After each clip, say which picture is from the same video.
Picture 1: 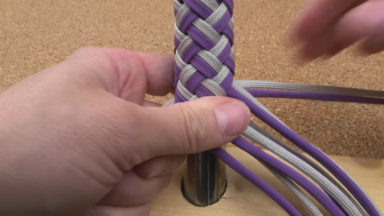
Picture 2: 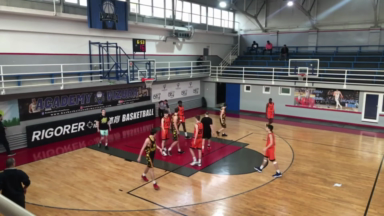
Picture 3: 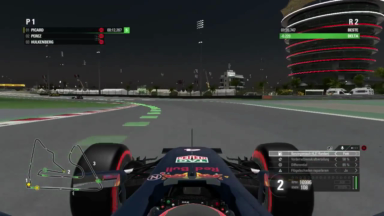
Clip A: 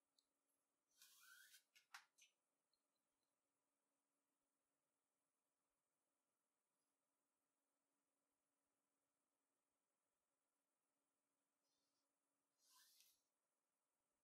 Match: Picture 1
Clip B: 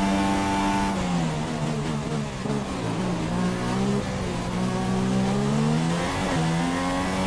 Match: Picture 3